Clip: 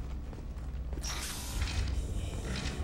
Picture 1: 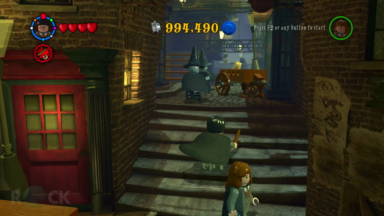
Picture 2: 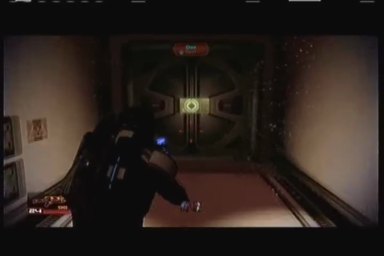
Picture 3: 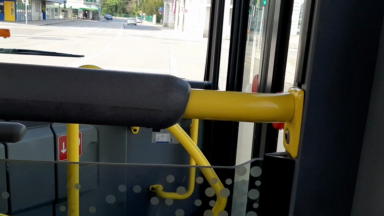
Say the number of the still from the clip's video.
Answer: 2